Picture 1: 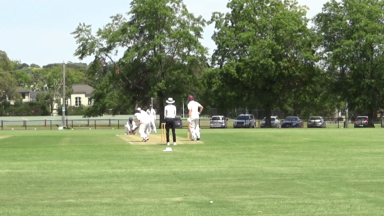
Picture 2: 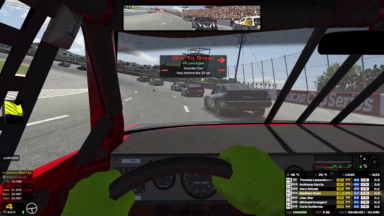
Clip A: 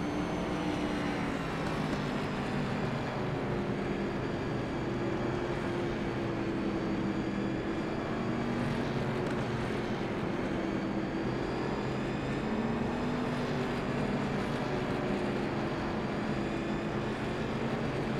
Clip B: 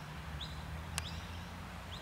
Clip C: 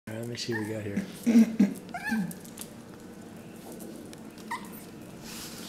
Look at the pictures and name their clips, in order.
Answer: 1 B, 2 A